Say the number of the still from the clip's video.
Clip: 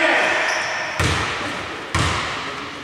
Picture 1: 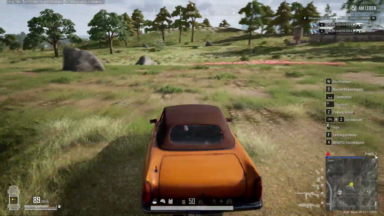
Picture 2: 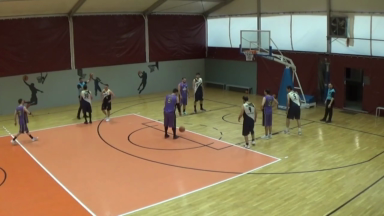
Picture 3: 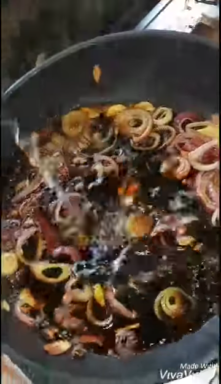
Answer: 2